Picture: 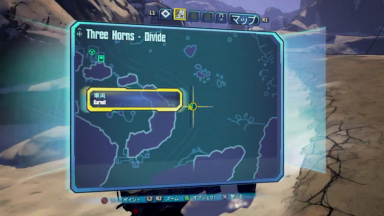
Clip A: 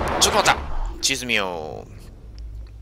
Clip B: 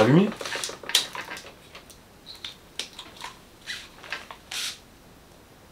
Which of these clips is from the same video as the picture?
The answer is A